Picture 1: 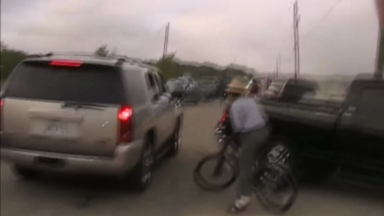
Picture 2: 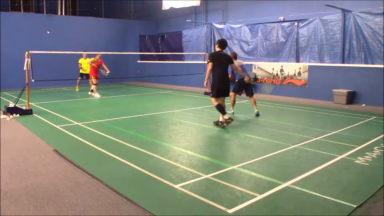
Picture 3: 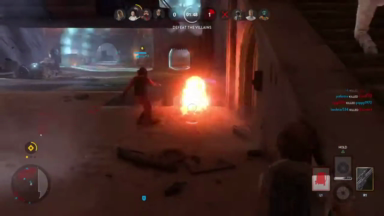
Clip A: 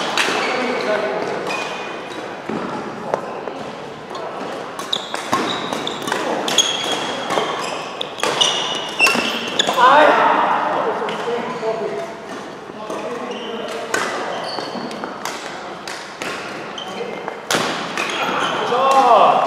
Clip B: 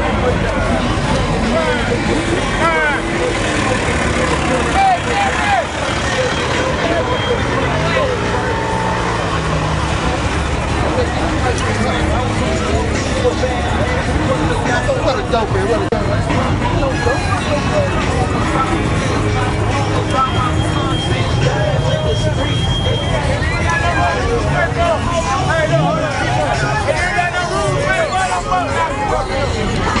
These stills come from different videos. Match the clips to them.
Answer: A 2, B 1